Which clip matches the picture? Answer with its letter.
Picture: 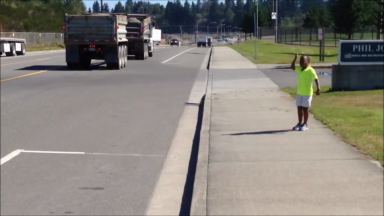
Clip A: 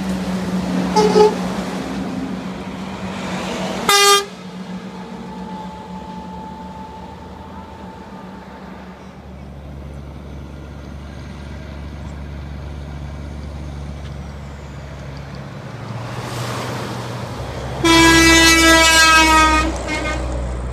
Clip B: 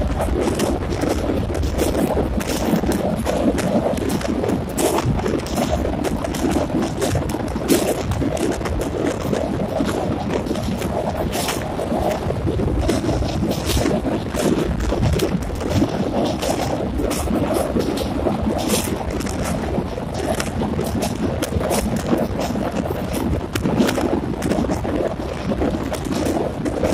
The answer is A